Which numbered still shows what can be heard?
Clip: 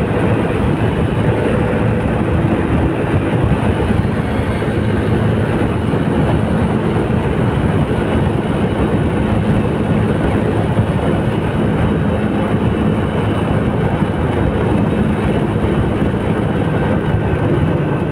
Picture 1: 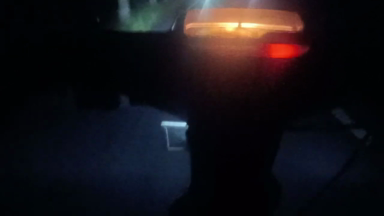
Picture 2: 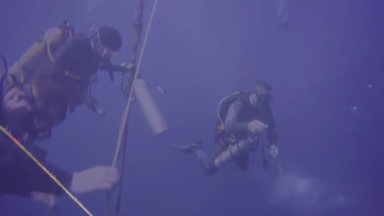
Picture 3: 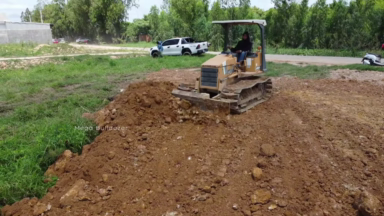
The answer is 1